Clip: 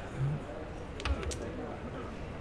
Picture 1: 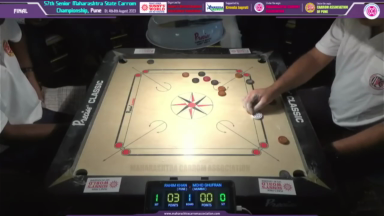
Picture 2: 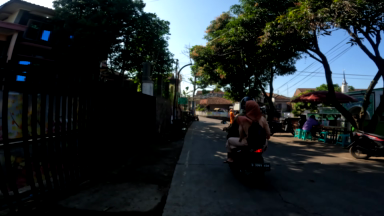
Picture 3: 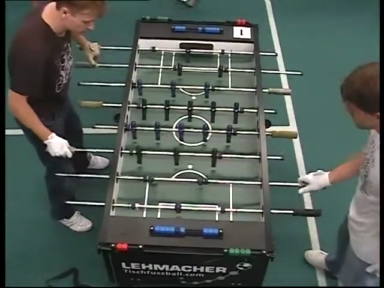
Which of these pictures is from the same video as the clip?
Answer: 1